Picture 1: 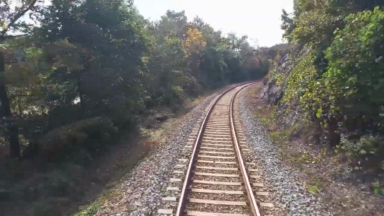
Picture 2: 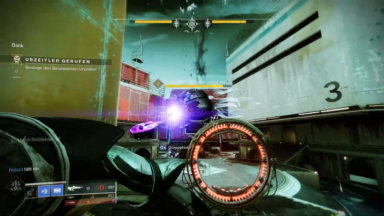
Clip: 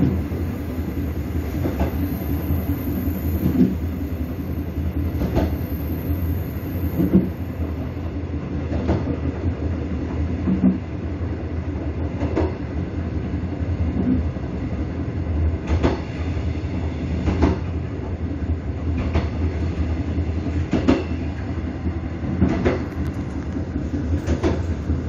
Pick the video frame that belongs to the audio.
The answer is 1